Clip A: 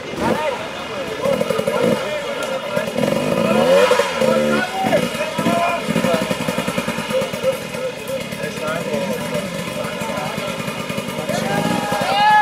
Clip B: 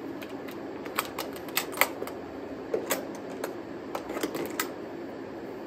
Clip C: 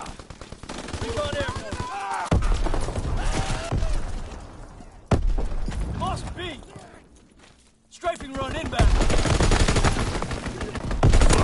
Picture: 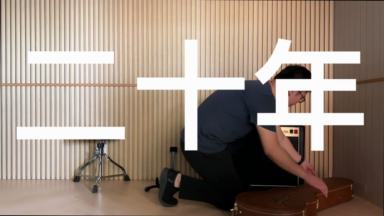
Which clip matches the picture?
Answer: B